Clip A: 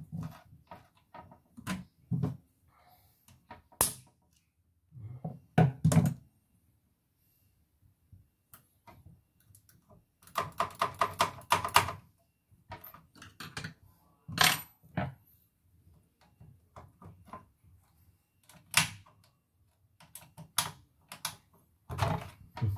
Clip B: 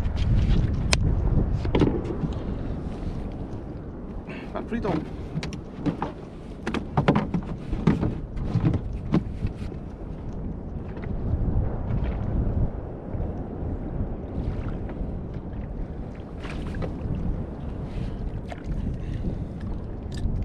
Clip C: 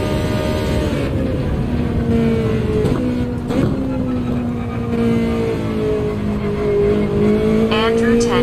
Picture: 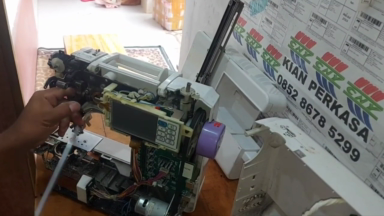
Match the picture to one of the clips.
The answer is A